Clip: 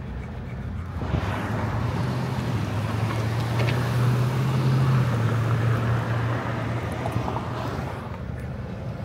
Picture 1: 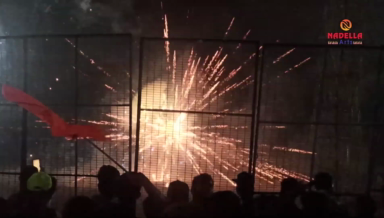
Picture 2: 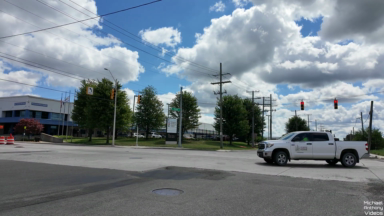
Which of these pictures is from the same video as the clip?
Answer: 2